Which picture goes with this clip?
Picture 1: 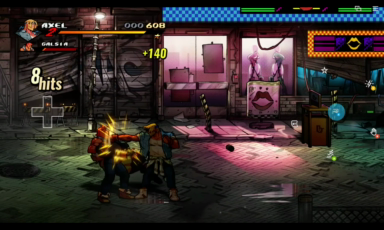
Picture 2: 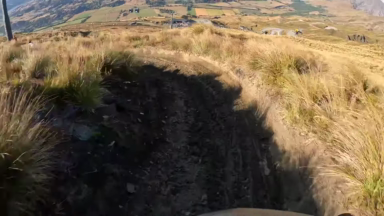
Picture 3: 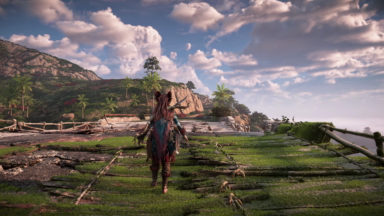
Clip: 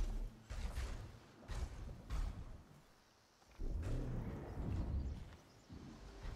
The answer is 3